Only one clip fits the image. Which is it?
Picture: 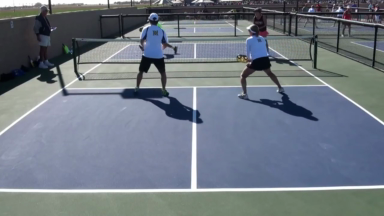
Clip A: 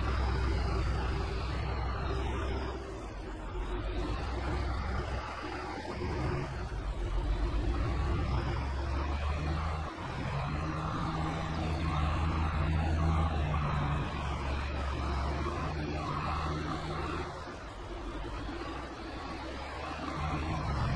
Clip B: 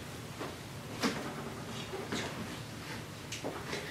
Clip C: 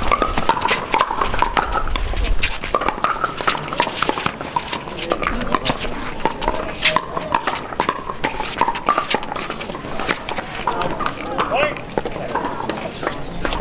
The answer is C